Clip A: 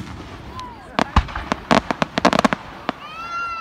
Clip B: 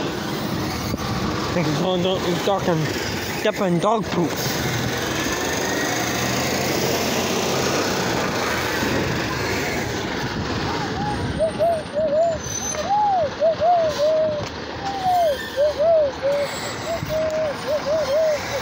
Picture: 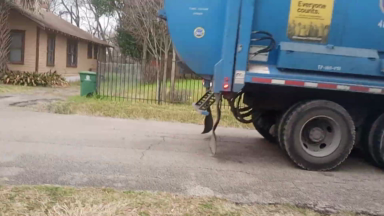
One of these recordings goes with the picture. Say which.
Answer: B